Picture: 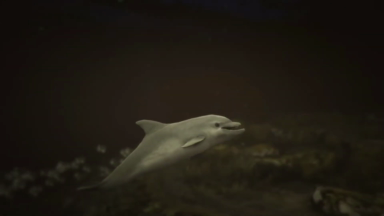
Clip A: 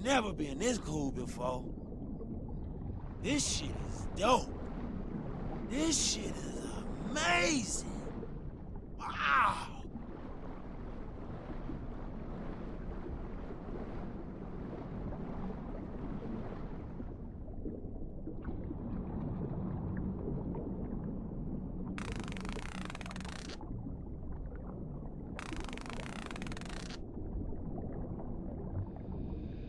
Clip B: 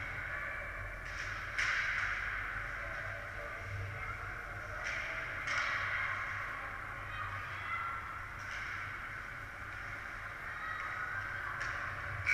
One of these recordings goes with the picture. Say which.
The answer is A